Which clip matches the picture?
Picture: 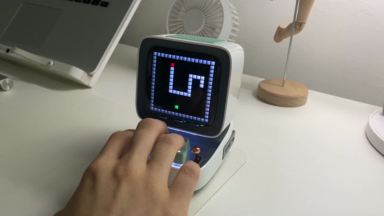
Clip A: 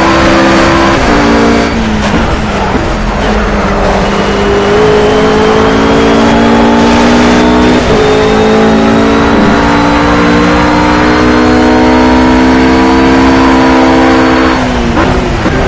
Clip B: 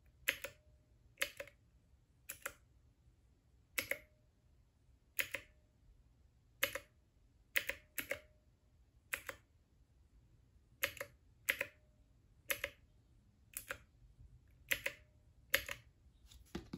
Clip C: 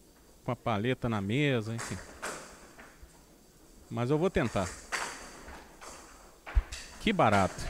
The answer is B